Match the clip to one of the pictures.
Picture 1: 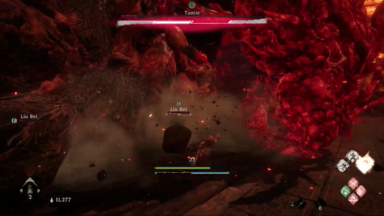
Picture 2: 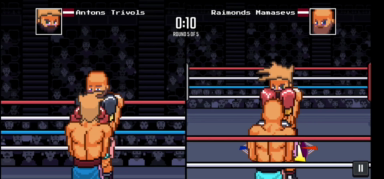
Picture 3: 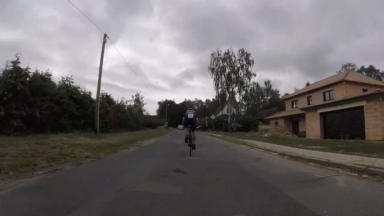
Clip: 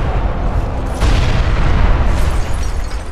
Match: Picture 1